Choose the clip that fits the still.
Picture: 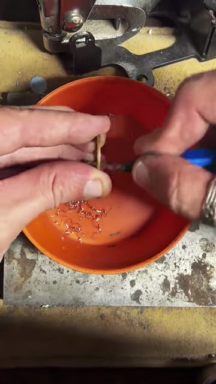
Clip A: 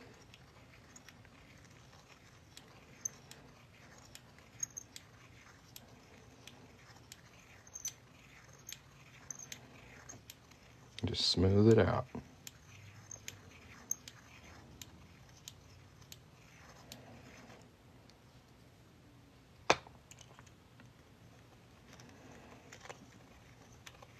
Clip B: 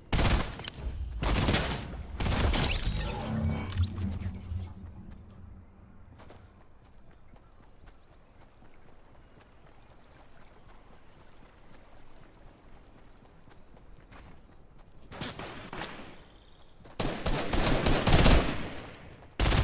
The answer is A